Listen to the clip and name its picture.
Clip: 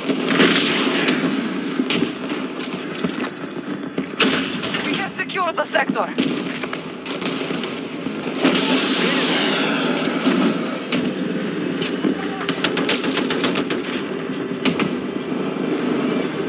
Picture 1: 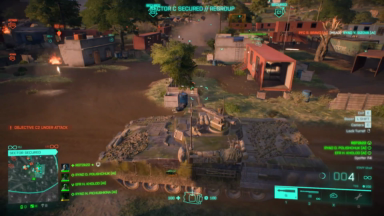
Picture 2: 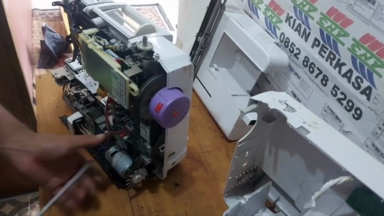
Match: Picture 1